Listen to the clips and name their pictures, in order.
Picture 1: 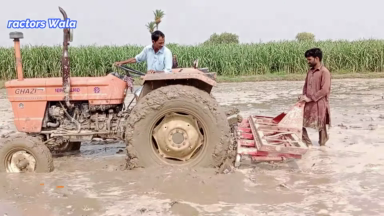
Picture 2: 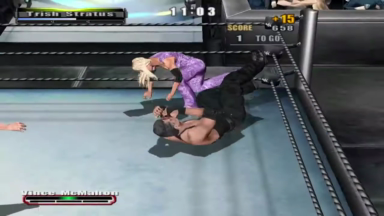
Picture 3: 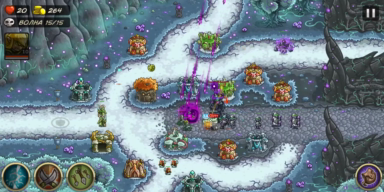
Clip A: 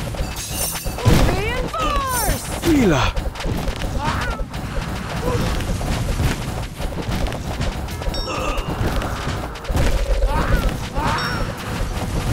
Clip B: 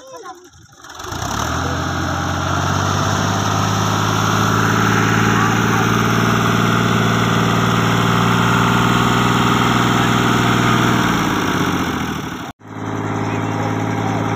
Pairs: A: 3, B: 1